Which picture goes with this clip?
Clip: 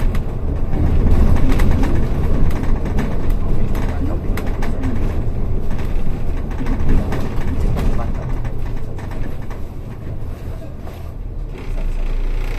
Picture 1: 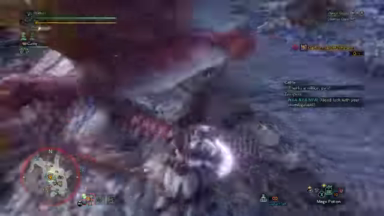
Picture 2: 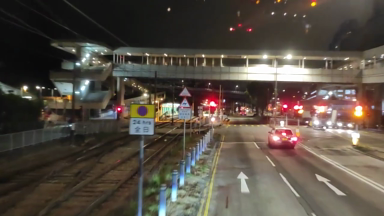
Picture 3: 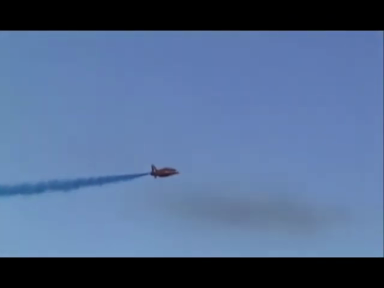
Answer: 2